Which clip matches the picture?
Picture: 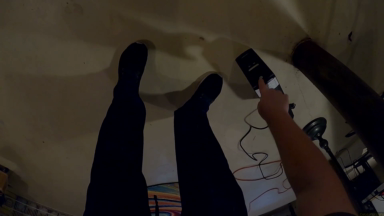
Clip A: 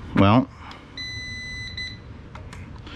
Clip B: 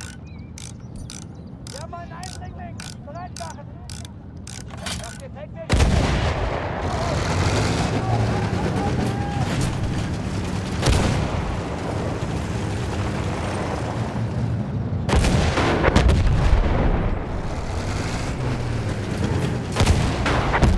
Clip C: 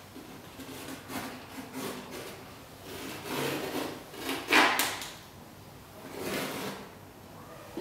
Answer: A